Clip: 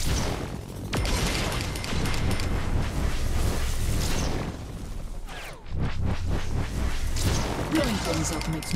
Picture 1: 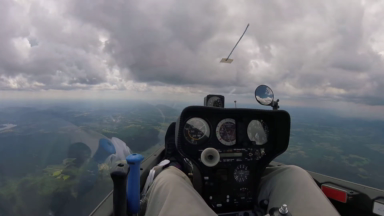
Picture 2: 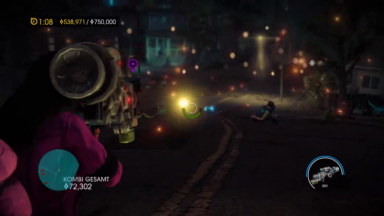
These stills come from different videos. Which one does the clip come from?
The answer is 2